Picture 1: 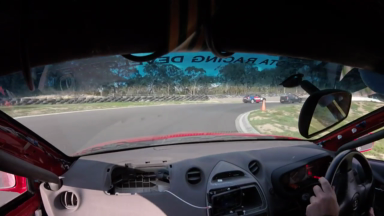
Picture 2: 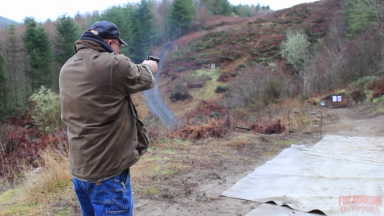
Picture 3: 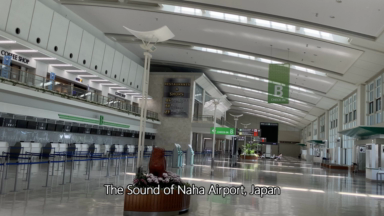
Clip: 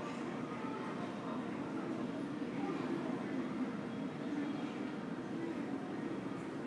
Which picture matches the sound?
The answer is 3